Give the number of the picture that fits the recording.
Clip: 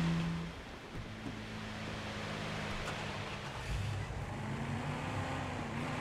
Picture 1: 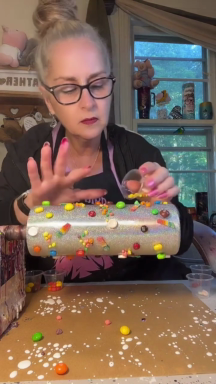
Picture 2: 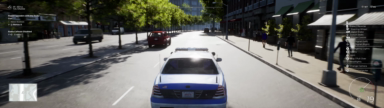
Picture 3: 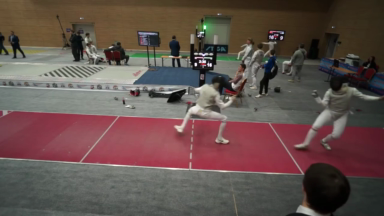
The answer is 2